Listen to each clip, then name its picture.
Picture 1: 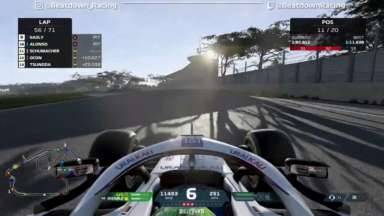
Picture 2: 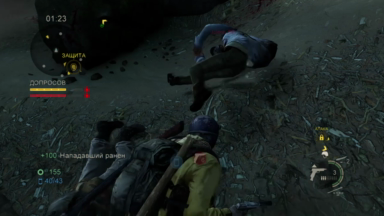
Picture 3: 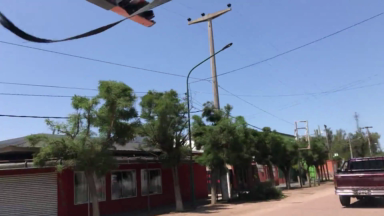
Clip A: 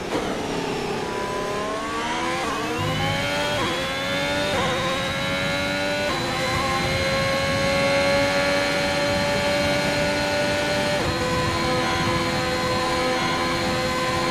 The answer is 1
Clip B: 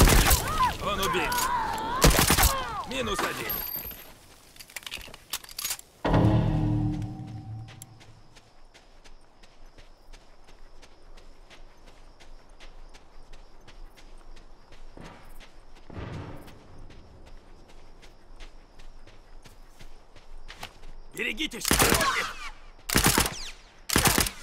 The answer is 2